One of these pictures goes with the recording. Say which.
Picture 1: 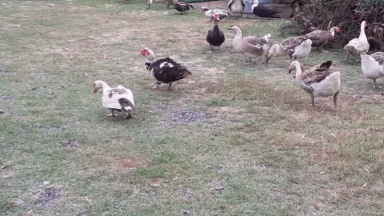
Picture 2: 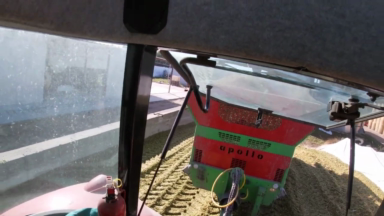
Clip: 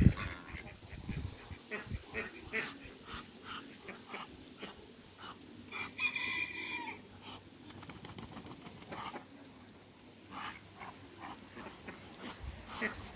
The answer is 1